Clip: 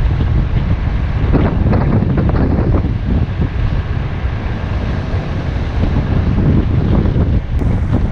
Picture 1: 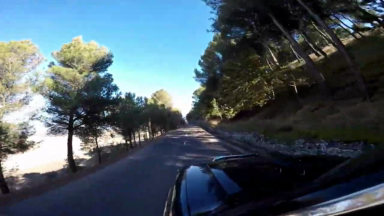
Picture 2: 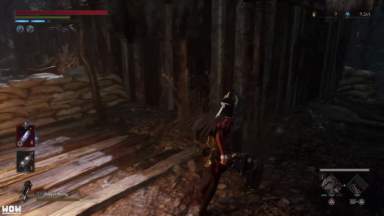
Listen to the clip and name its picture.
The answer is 1